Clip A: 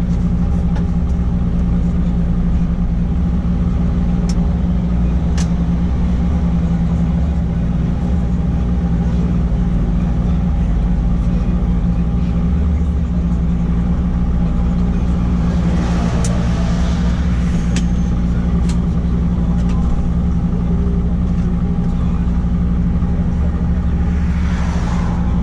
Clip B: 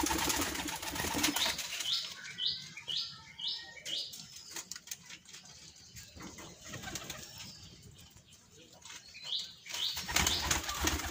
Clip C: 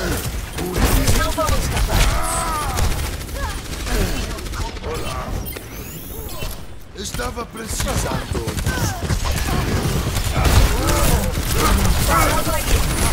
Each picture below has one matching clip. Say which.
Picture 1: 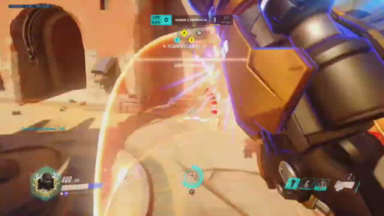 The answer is C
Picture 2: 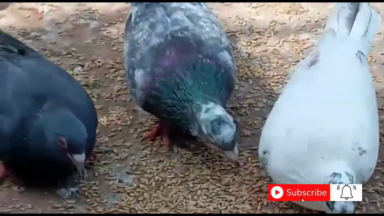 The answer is B